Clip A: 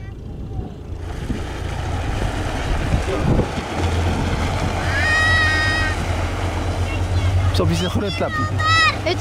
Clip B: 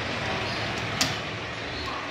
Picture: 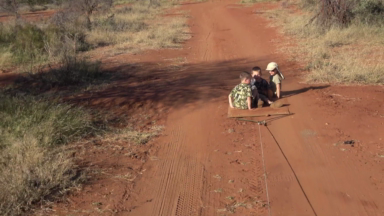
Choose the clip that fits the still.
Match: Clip A